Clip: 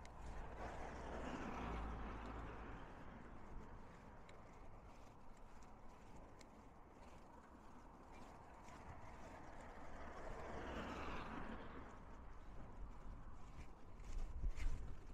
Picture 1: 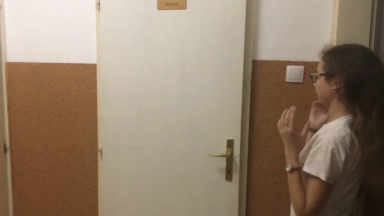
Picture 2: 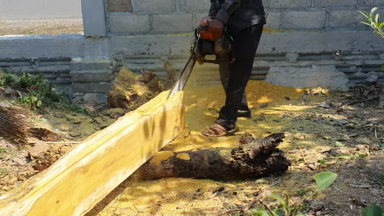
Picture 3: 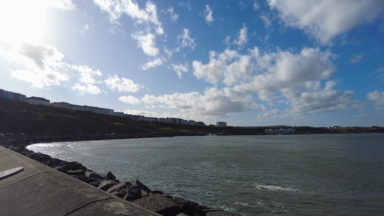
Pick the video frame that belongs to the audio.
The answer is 3